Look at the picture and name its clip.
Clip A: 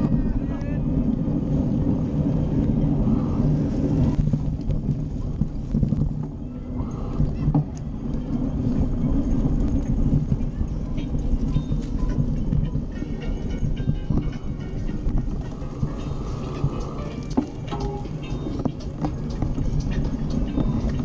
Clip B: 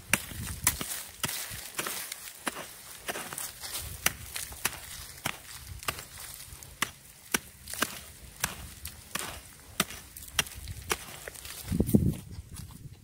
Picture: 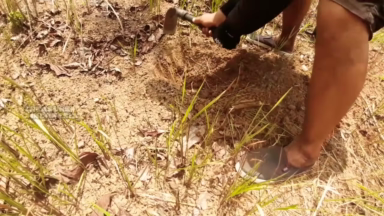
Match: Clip B